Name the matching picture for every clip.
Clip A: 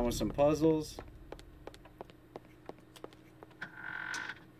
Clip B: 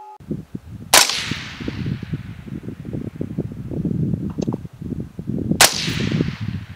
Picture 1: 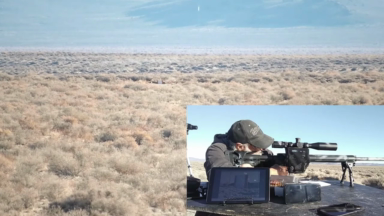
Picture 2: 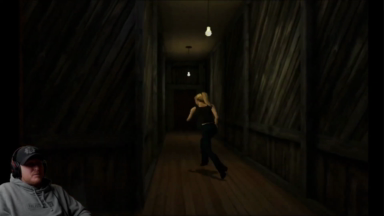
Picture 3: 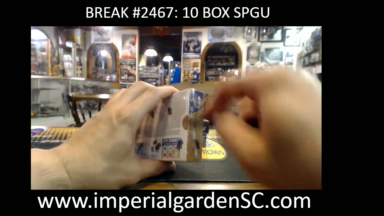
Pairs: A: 2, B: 1